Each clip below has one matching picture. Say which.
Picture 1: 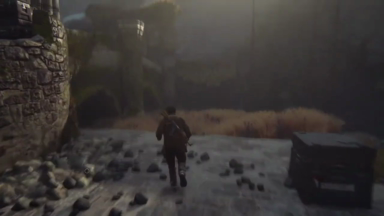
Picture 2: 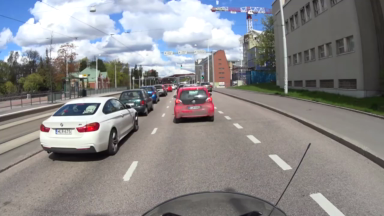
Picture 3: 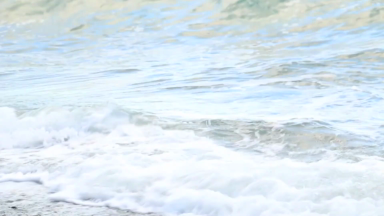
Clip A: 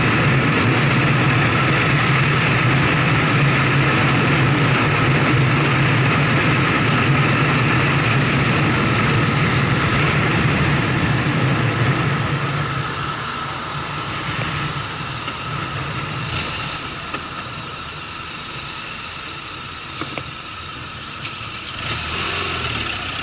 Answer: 2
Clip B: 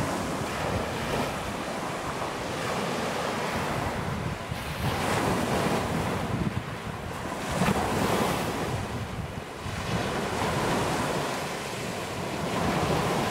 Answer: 3